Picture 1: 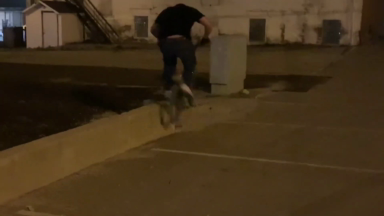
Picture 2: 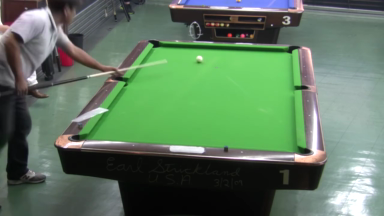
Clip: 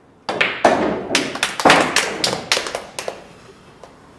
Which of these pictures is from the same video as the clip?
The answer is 2